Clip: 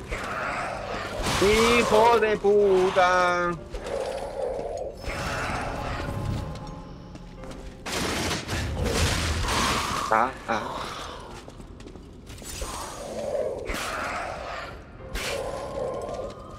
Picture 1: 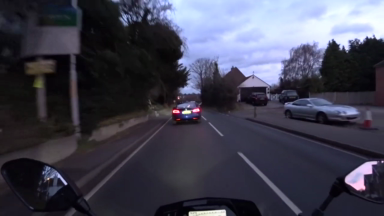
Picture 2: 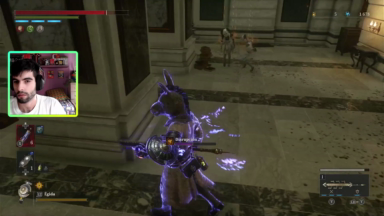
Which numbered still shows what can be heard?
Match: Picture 2